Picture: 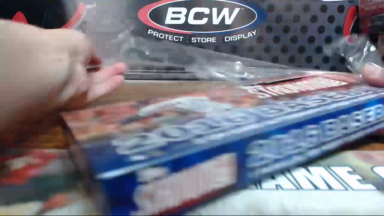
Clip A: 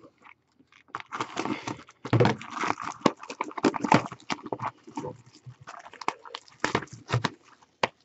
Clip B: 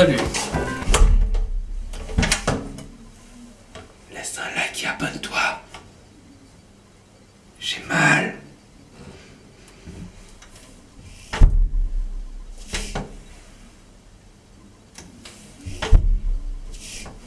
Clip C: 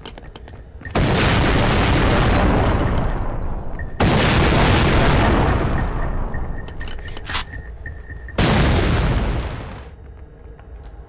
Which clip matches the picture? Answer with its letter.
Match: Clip A